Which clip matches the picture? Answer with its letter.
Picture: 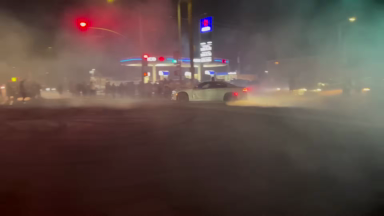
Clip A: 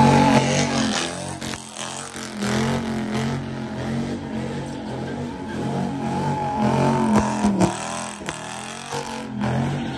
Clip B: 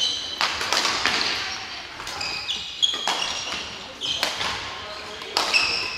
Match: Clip A